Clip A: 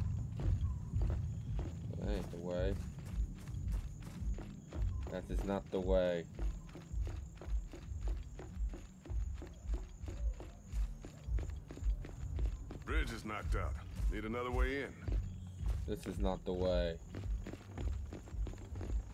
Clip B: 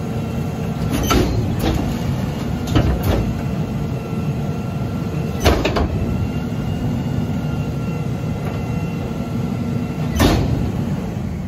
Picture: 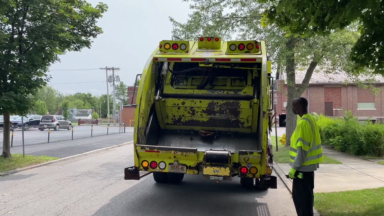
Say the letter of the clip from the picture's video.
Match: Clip B